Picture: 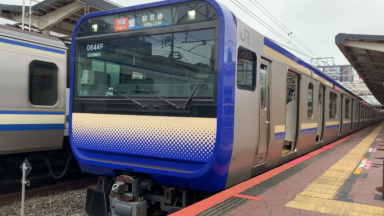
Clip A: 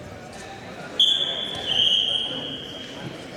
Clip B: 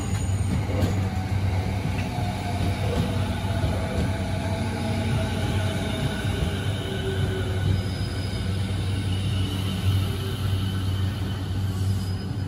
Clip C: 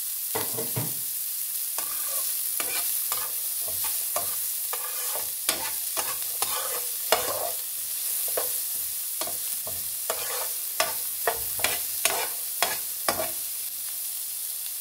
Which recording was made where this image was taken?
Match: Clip B